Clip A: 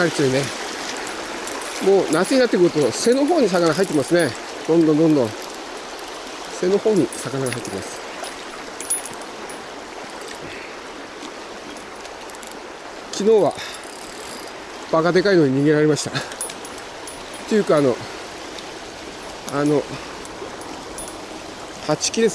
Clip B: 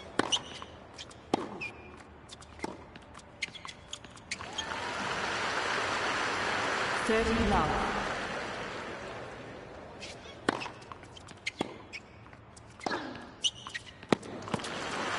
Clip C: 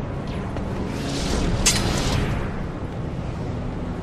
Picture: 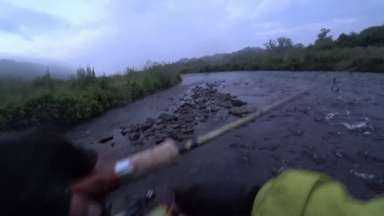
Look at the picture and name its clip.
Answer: A